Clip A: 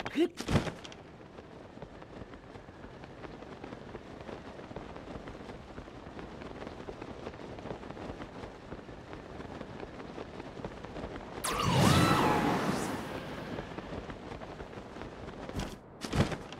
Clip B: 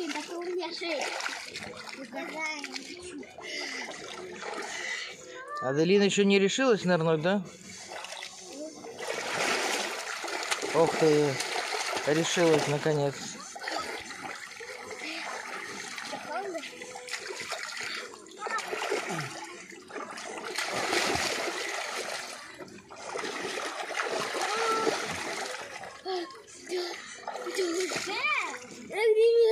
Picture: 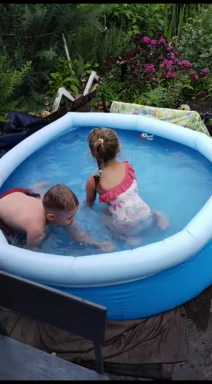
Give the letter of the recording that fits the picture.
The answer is B